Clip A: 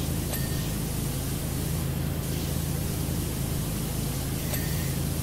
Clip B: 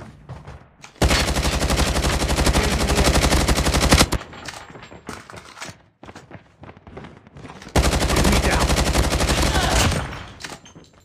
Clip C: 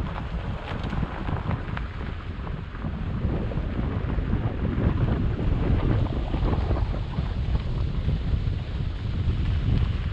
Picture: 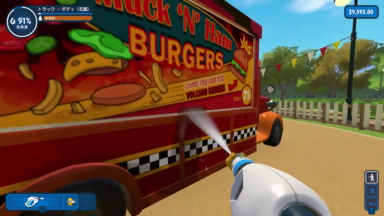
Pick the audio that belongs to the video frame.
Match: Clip A